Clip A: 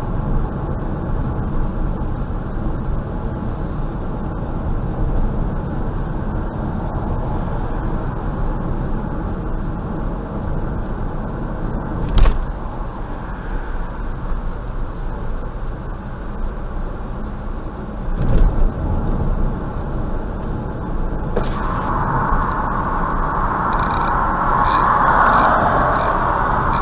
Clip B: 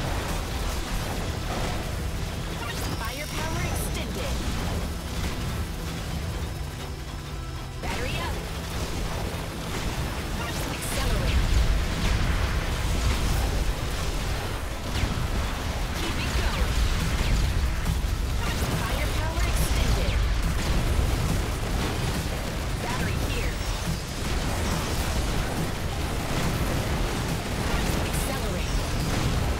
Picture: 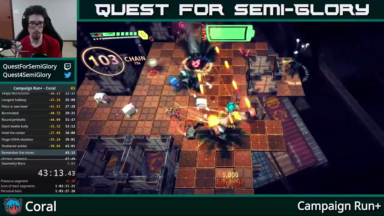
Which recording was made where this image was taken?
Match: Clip B